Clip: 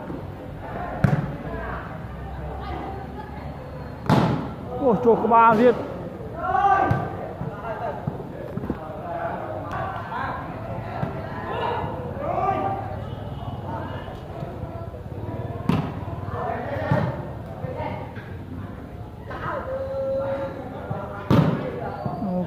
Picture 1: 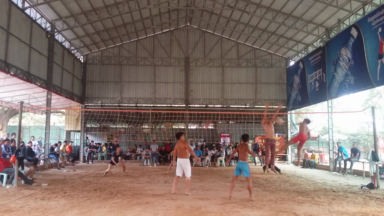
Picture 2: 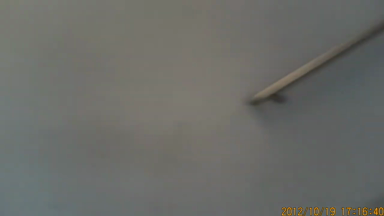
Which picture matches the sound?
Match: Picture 1